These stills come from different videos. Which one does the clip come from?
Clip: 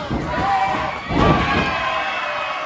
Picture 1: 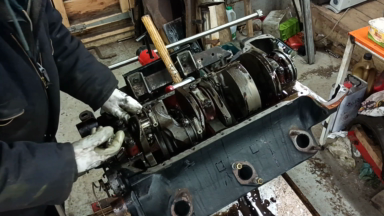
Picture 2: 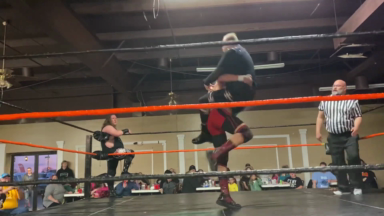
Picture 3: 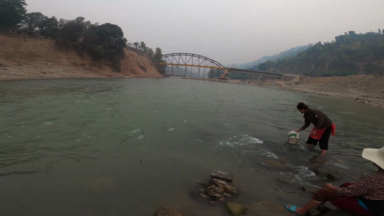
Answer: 2